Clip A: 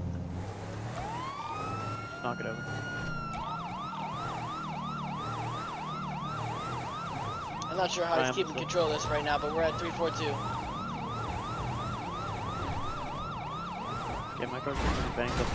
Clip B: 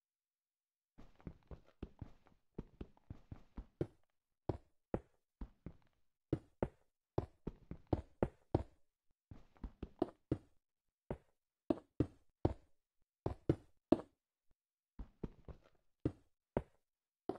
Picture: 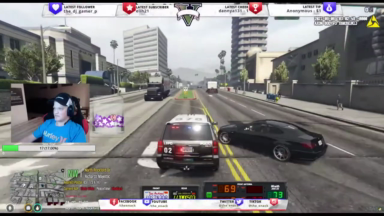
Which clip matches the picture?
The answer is A